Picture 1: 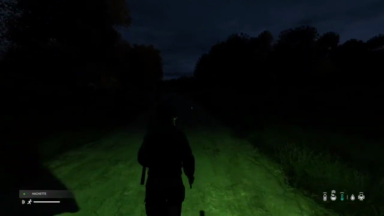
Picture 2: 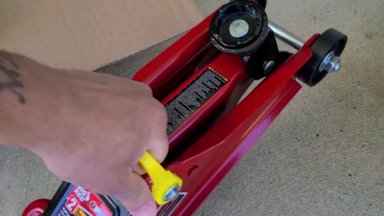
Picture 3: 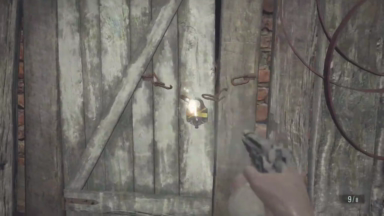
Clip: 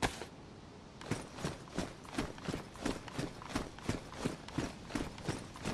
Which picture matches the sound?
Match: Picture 1